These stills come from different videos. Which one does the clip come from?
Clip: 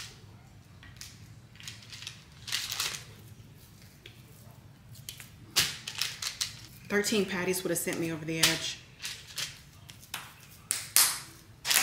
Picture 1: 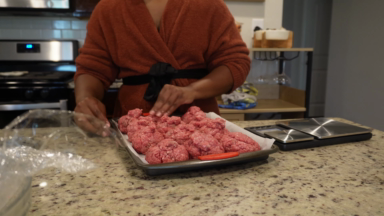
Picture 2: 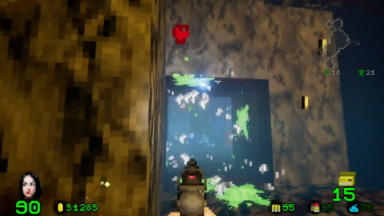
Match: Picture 1